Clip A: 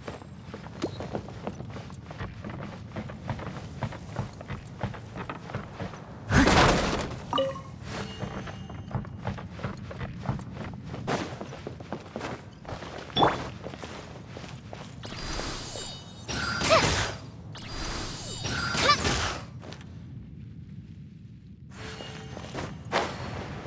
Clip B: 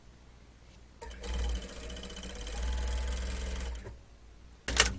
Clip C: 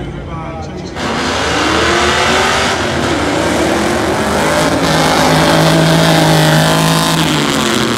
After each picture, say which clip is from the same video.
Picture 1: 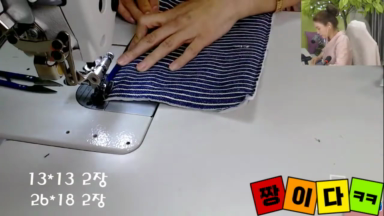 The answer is B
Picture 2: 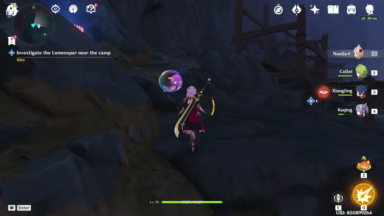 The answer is A